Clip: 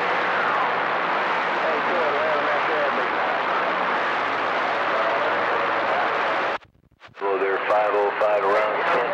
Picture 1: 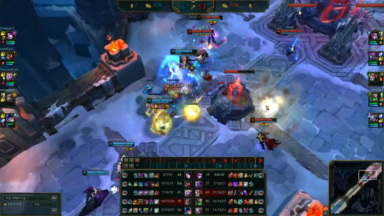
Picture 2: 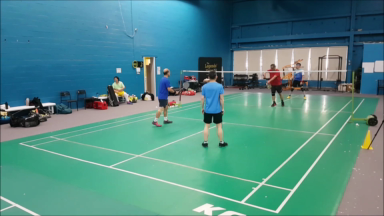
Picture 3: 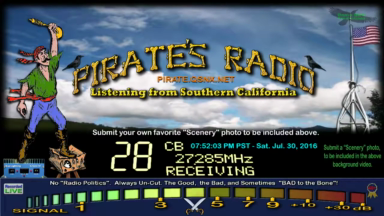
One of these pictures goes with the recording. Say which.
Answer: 3